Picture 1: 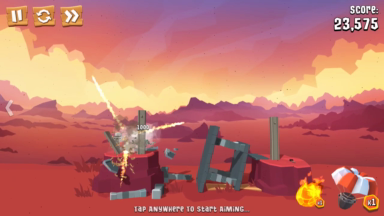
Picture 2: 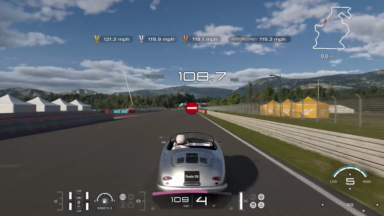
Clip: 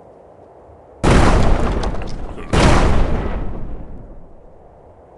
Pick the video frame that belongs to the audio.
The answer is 1